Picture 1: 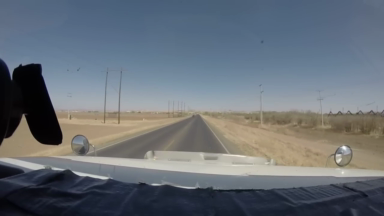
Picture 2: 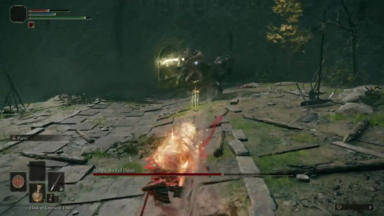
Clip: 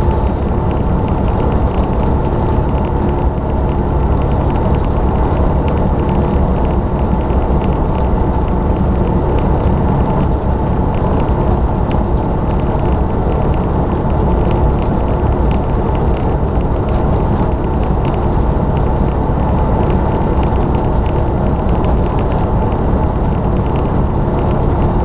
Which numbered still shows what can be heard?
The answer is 1